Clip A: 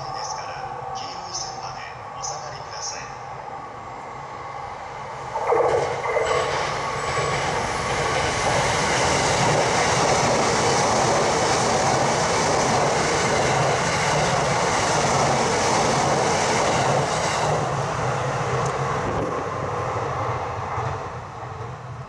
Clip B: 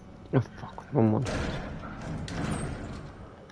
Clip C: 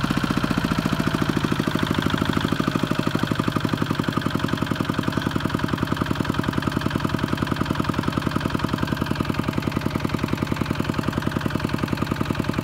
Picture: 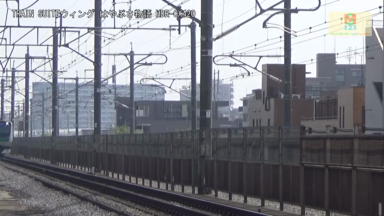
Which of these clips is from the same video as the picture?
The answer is A